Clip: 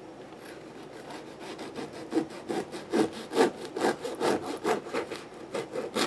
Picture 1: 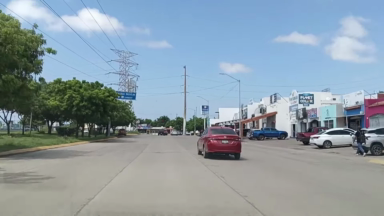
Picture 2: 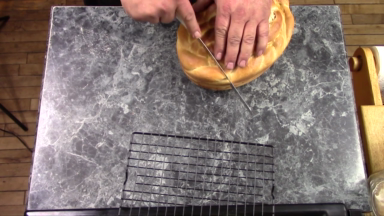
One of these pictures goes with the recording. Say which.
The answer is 2